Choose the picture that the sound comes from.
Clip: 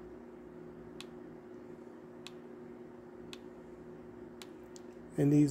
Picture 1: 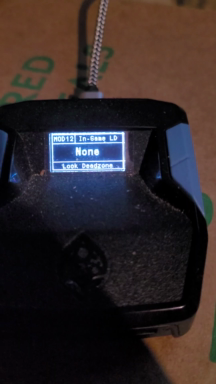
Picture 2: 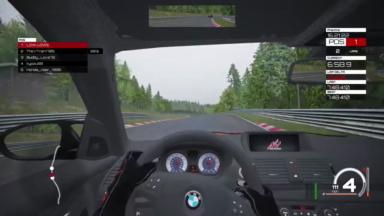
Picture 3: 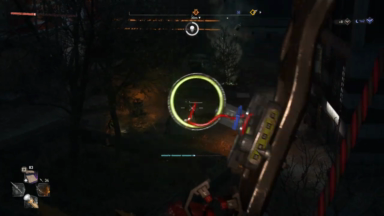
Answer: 1